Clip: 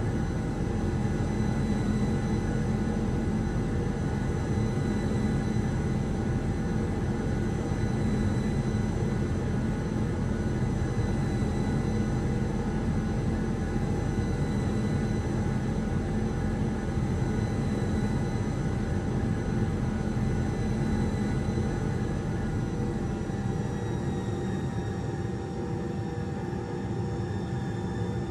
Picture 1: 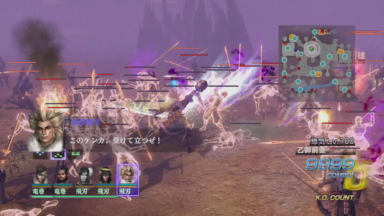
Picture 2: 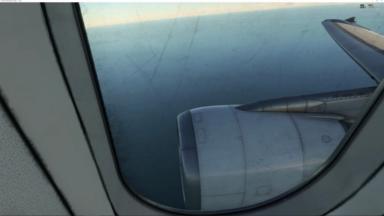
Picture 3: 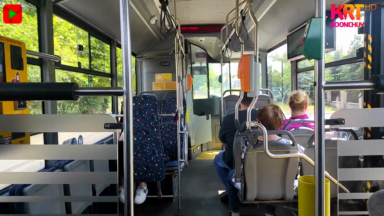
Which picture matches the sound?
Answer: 2